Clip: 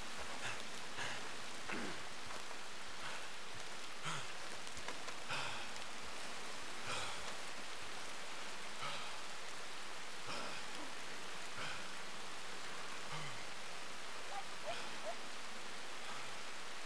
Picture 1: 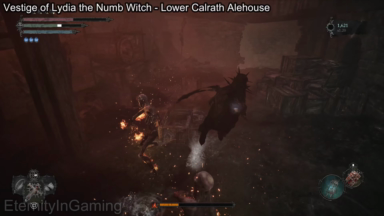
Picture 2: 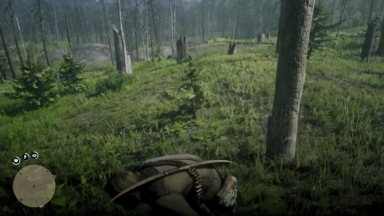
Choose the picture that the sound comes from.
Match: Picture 2